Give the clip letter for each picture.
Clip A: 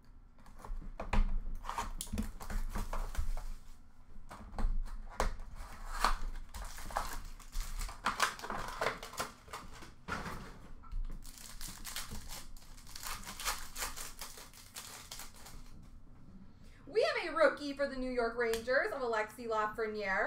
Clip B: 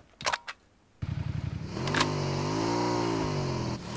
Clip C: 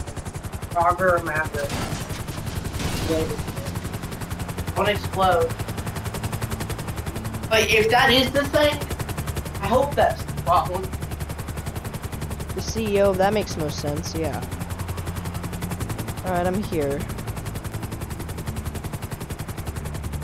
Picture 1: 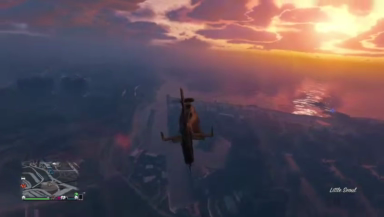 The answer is C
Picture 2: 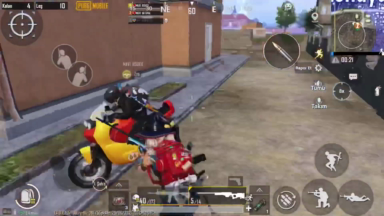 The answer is B